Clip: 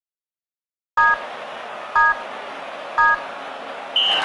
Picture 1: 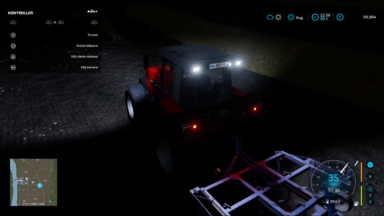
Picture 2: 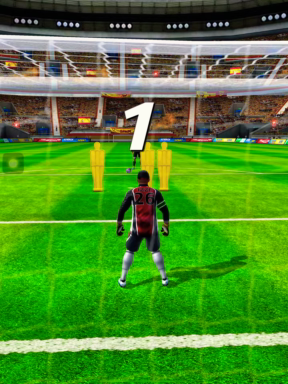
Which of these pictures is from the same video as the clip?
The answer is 2